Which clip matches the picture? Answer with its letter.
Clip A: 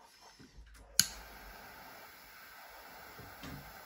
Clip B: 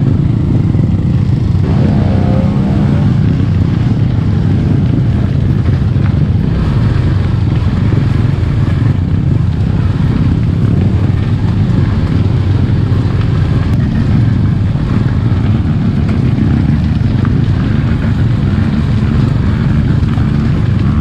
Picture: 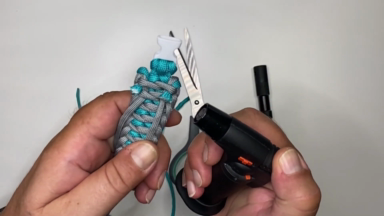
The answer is A